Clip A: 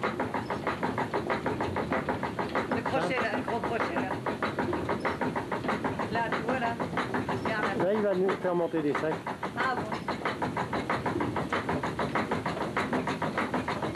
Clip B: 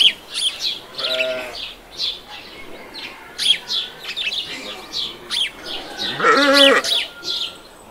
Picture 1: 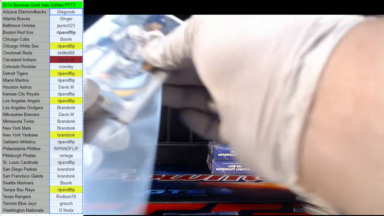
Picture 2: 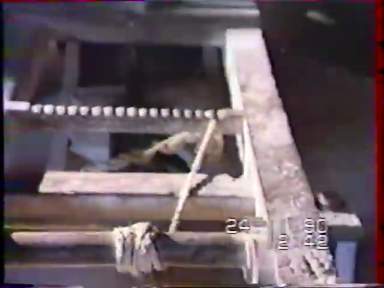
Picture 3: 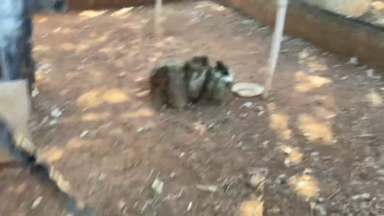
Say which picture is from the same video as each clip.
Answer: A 2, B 3